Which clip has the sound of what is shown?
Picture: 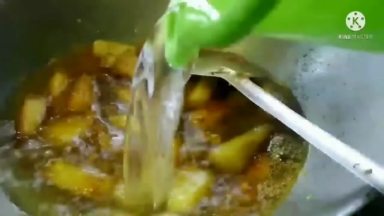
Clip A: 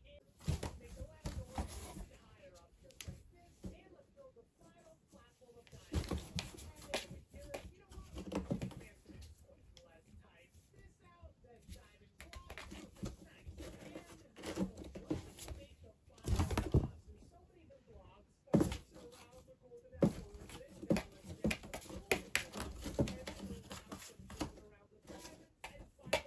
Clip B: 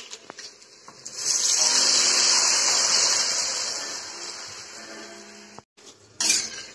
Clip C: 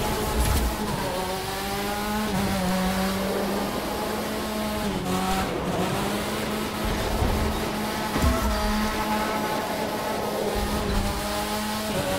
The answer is B